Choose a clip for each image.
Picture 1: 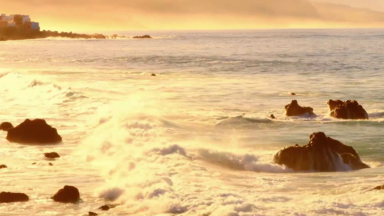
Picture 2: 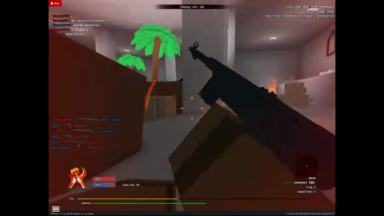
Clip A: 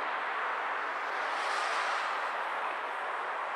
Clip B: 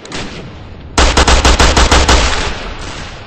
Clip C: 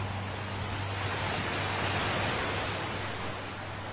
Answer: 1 C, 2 B